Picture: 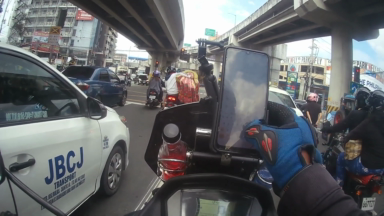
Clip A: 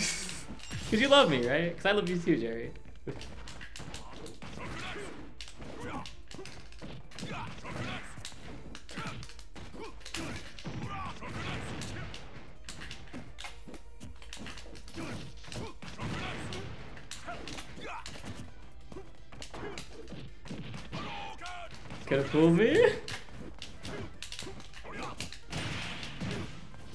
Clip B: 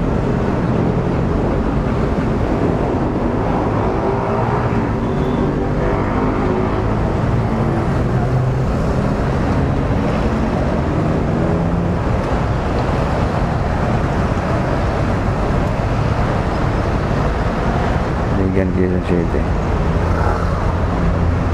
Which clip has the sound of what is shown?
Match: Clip B